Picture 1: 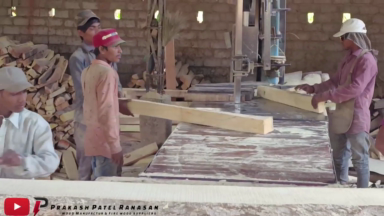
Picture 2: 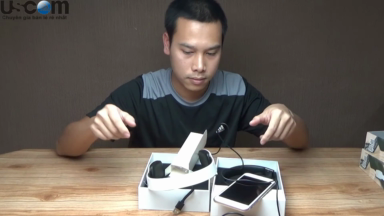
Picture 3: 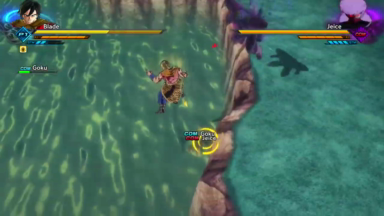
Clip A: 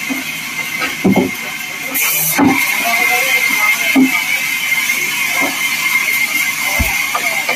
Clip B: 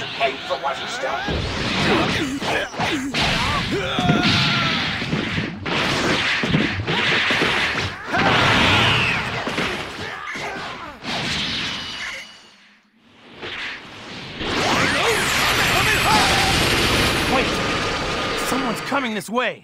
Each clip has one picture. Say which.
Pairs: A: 1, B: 3